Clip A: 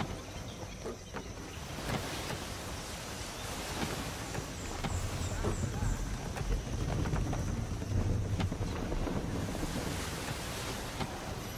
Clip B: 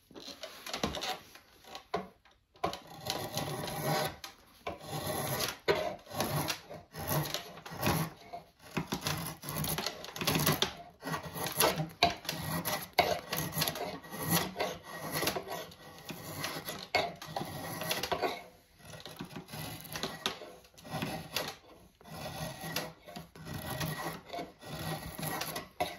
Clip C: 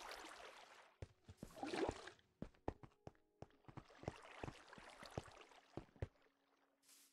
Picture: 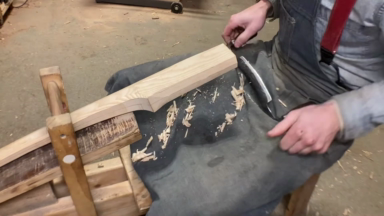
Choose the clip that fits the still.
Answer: B